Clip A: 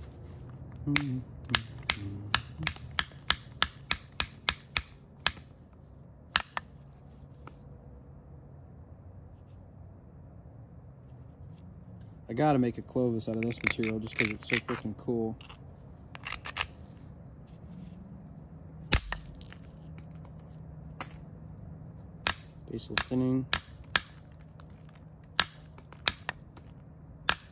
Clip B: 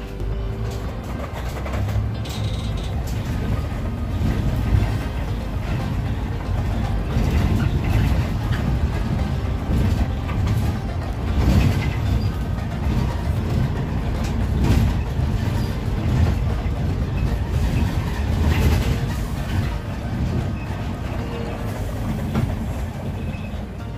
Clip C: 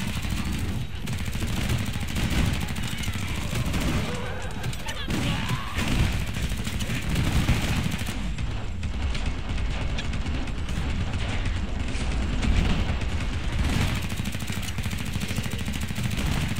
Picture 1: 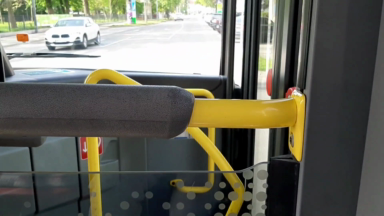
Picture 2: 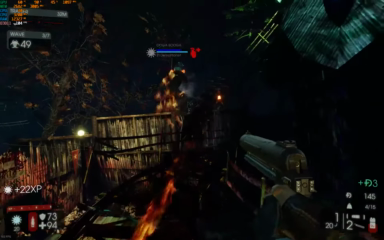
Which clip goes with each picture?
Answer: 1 B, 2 C